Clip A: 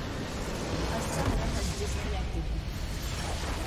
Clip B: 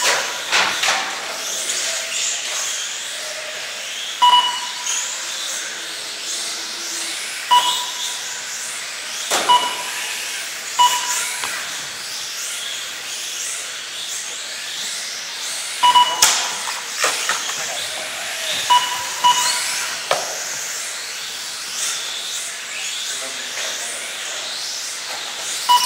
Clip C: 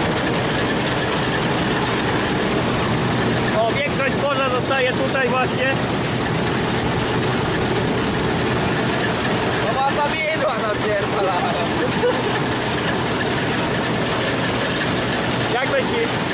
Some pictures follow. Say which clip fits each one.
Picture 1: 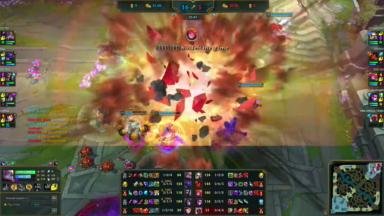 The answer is A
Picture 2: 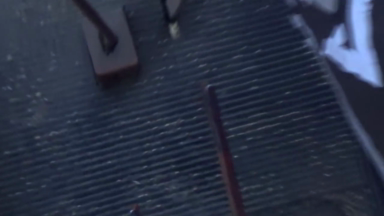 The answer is C